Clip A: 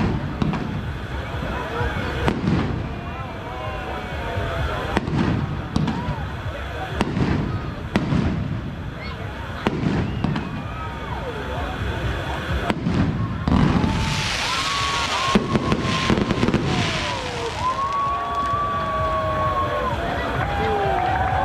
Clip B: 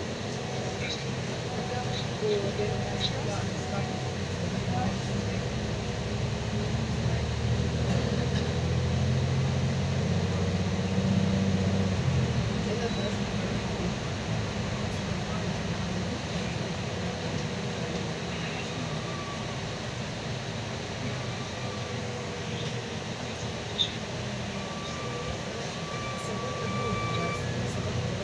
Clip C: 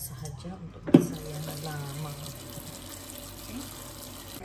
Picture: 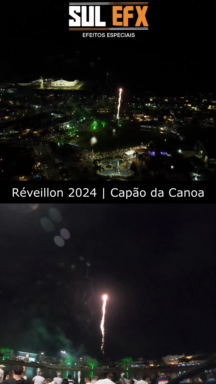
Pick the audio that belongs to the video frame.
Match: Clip A